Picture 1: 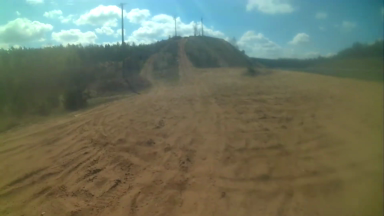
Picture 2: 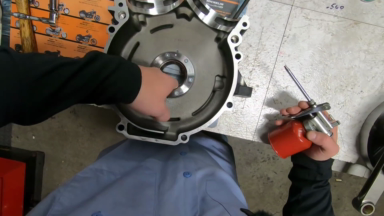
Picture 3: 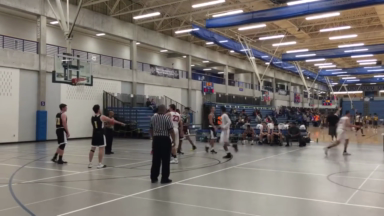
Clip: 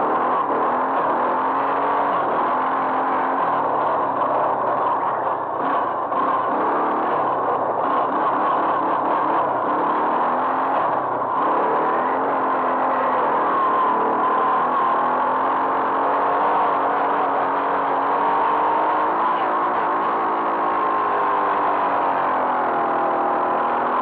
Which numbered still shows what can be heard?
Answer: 1